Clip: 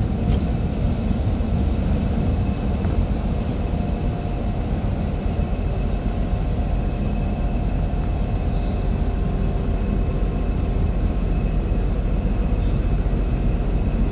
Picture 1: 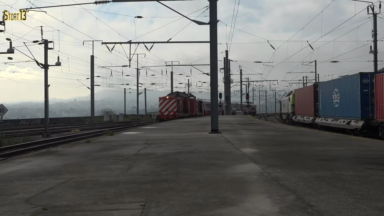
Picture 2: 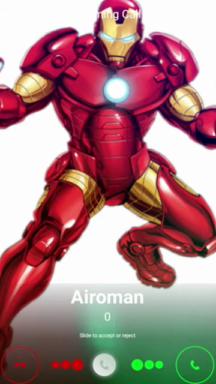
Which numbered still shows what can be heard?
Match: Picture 1